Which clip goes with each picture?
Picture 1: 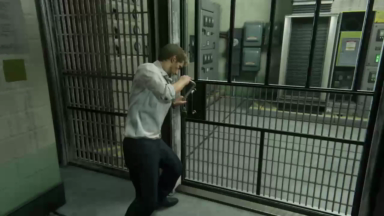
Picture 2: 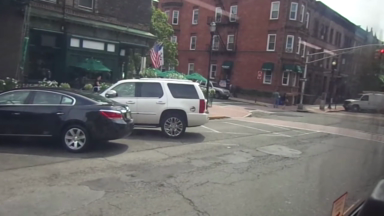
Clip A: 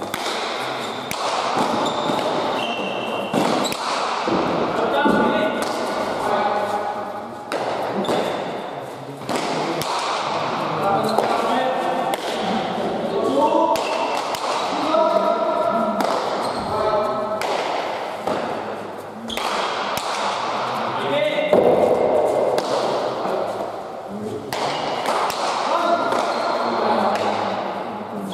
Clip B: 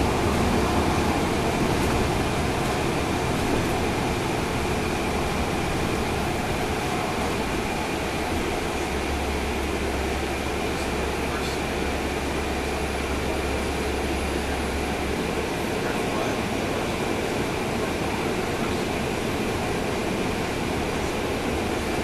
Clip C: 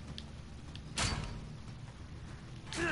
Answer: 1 C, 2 B